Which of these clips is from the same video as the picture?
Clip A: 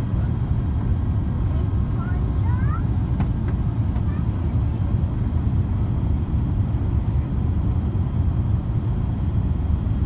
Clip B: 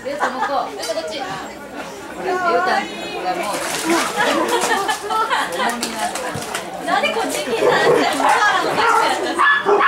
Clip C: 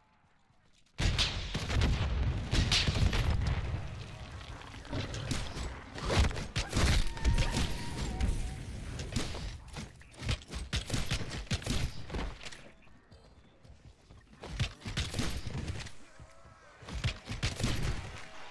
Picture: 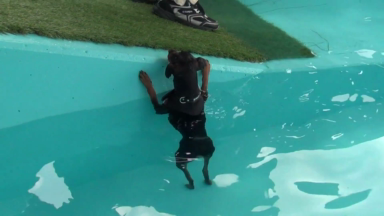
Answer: B